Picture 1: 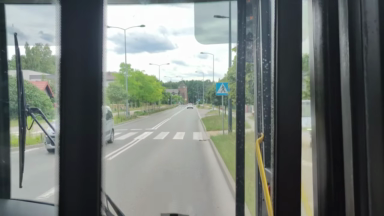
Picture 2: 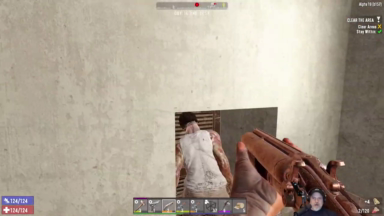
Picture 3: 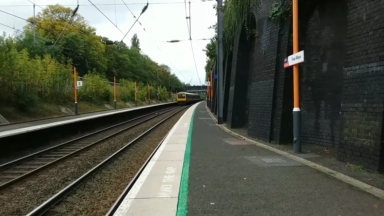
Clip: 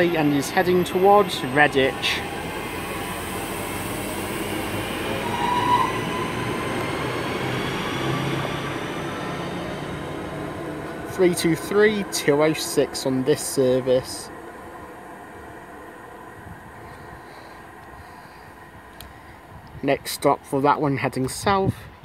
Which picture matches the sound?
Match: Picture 3